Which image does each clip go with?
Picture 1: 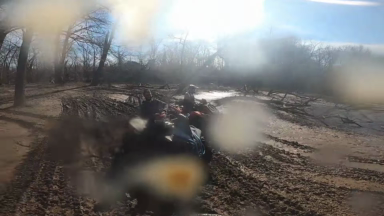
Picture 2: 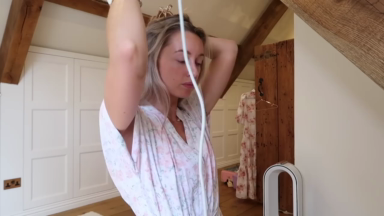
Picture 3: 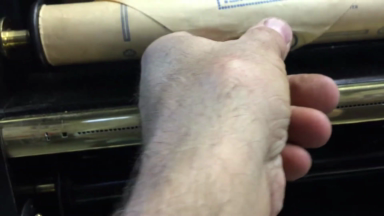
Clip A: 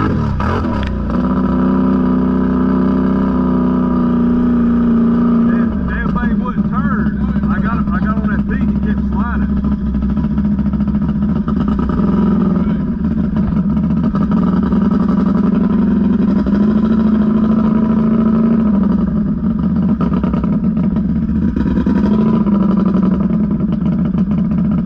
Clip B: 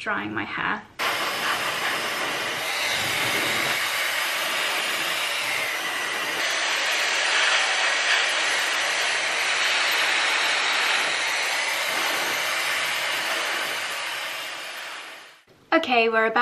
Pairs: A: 1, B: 2